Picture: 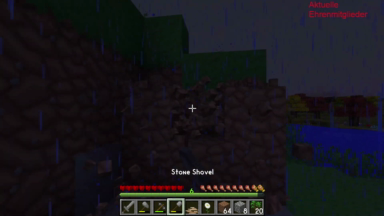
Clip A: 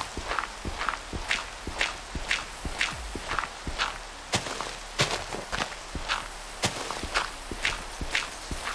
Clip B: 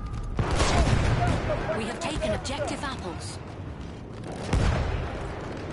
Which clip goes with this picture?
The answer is A